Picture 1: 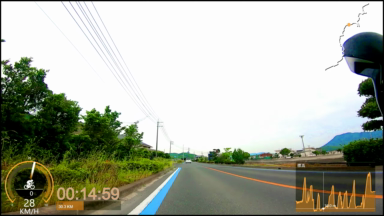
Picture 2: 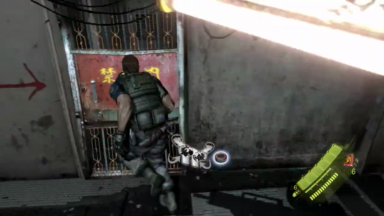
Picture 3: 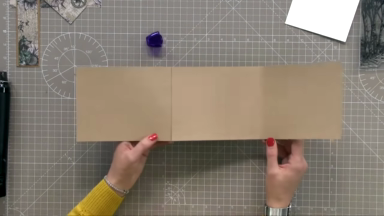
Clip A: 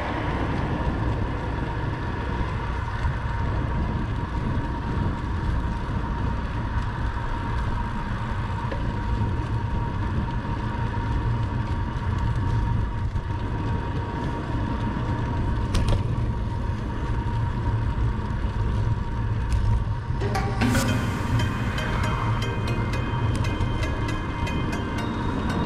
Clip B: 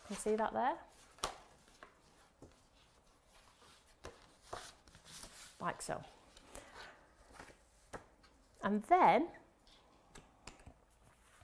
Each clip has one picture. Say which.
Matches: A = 1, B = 3